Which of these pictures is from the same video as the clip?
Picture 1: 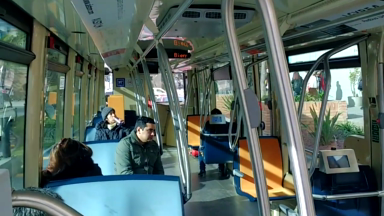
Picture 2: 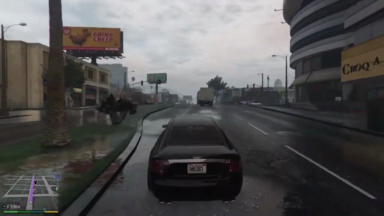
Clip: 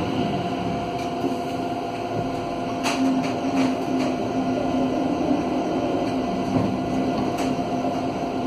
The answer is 1